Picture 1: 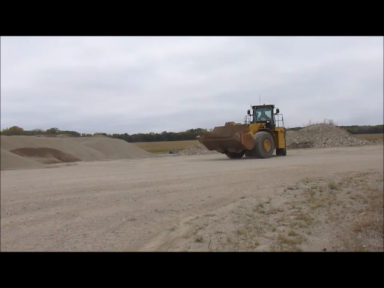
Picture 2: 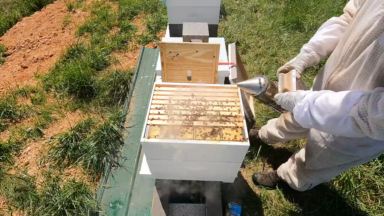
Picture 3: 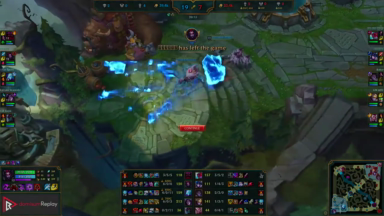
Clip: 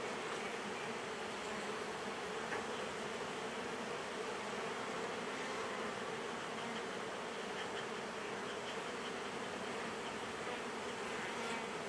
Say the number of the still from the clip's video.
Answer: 2